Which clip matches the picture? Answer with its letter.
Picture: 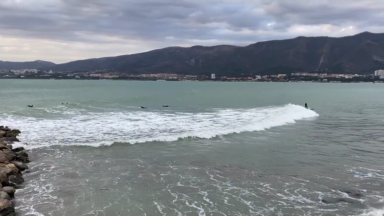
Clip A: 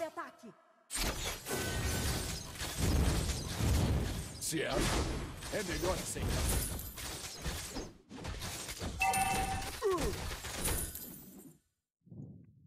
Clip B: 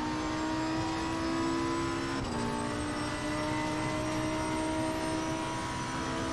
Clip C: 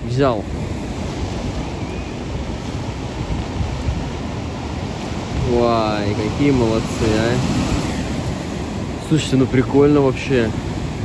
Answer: C